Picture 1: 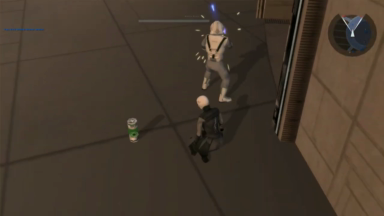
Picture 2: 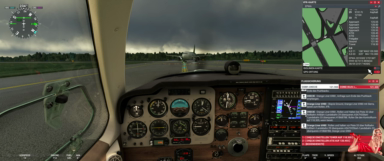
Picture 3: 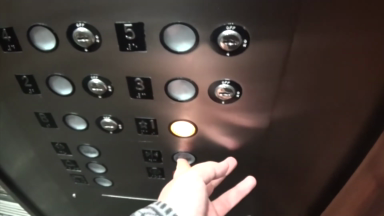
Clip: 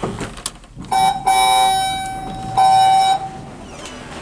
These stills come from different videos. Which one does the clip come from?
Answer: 3